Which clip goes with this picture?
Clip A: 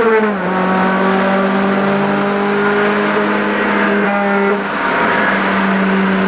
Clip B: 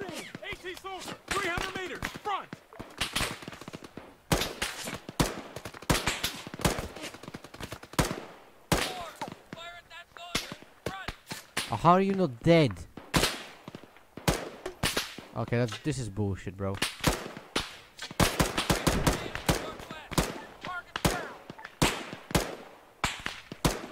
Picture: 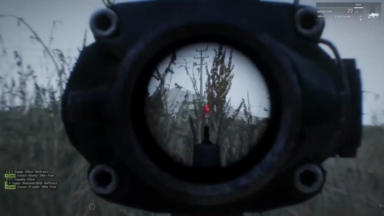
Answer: B